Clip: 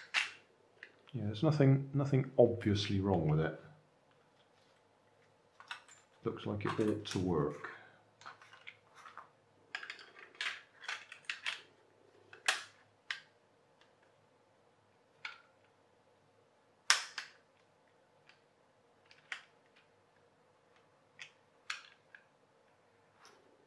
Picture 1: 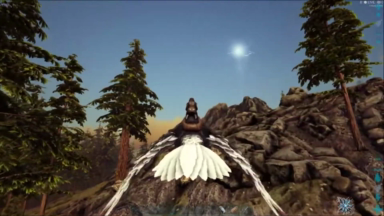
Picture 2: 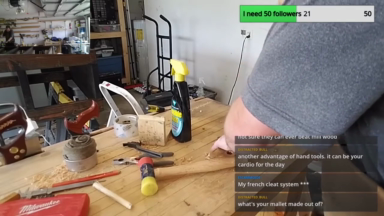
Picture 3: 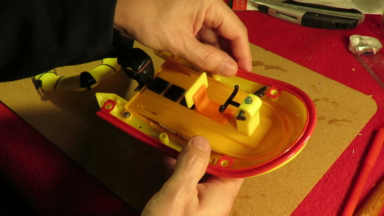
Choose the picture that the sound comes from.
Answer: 3